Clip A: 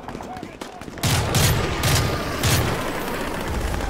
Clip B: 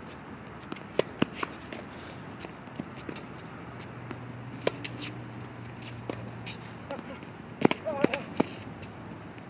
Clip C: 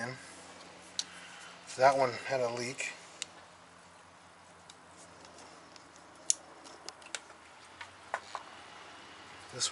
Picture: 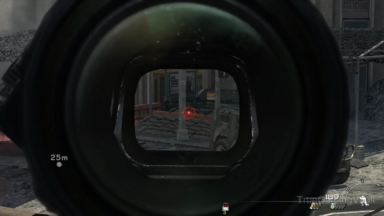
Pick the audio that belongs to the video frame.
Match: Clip A